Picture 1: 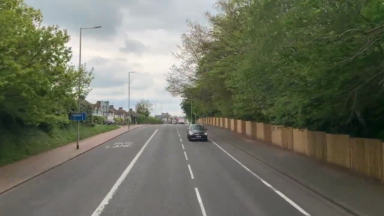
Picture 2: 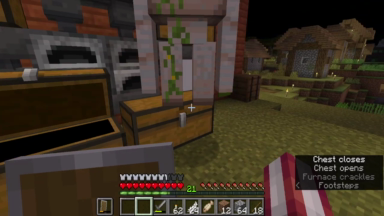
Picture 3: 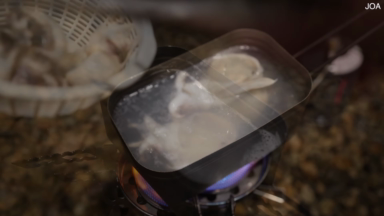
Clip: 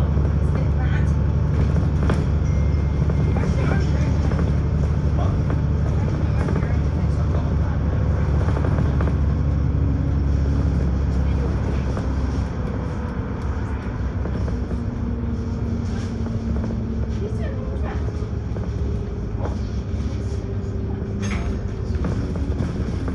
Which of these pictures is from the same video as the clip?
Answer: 1